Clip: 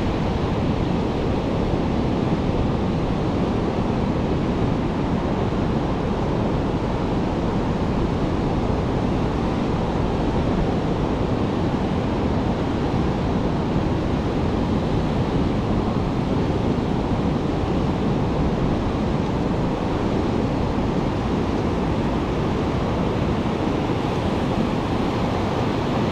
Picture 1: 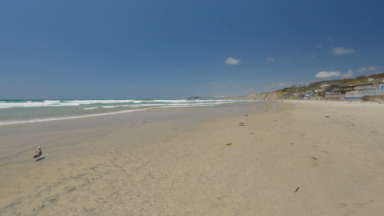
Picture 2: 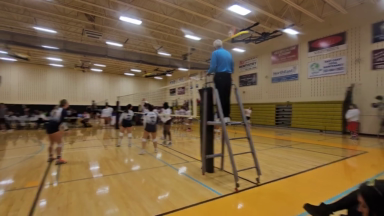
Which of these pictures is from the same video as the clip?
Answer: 1